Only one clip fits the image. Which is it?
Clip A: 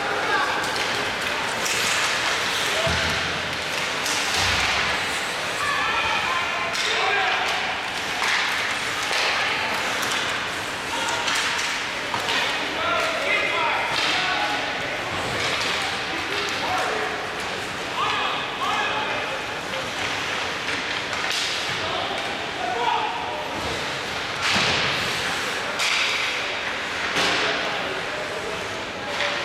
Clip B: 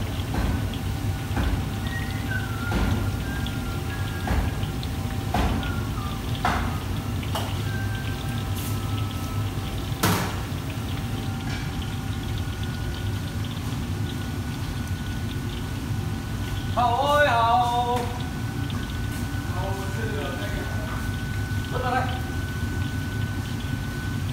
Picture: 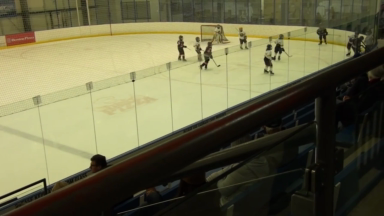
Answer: A